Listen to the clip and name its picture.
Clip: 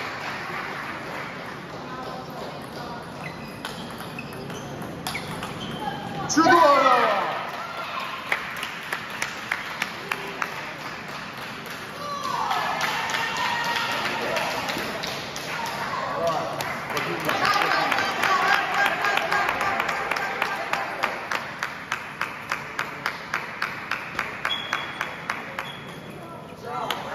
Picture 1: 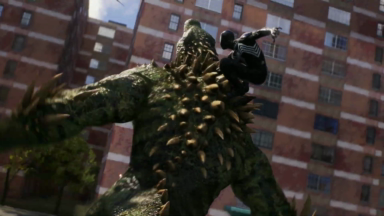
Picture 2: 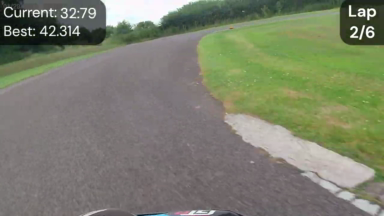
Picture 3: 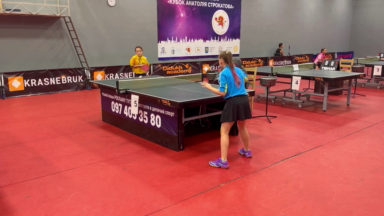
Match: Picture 3